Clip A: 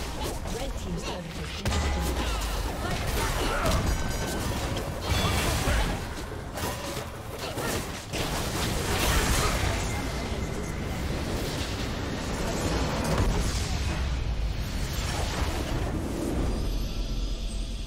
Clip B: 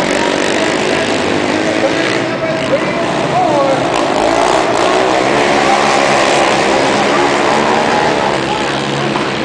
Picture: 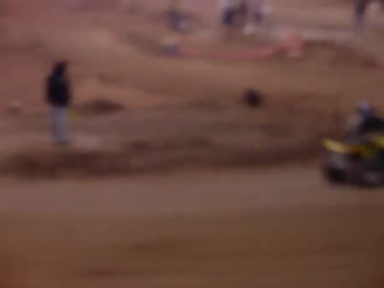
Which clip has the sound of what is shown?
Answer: B